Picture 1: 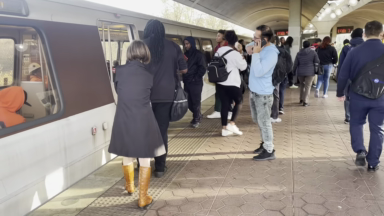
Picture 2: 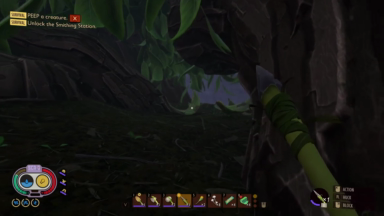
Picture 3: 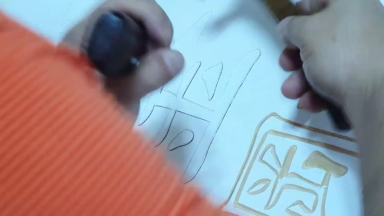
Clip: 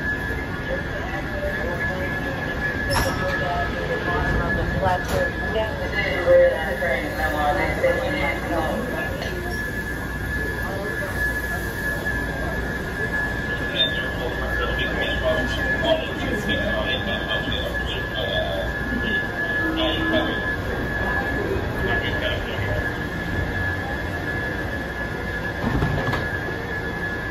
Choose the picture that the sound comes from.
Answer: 1